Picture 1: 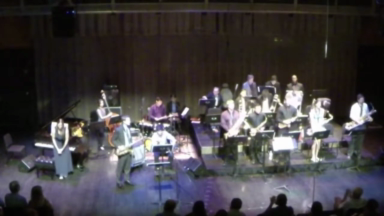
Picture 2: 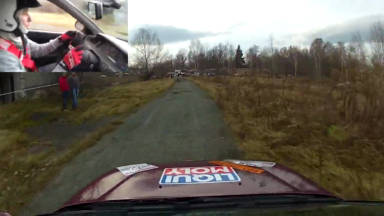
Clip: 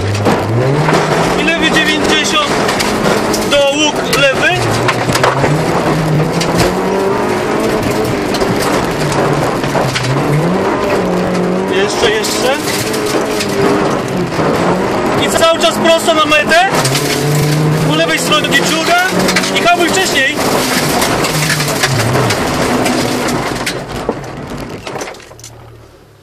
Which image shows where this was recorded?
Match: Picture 2